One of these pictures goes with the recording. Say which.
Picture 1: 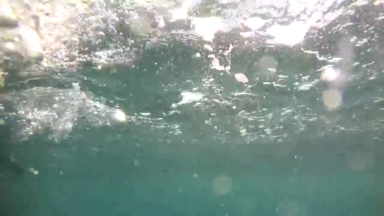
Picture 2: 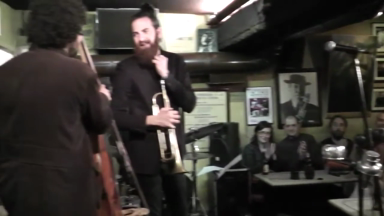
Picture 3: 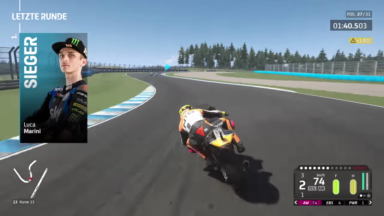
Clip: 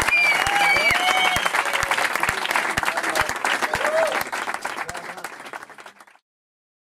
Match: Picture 2